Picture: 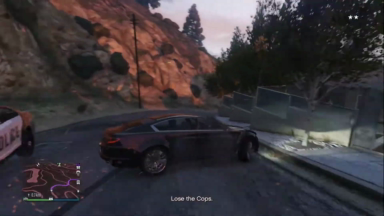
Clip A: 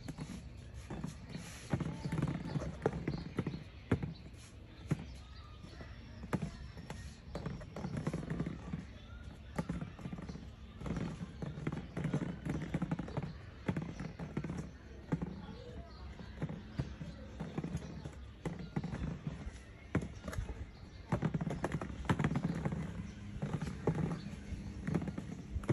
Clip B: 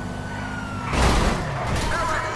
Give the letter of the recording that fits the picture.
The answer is B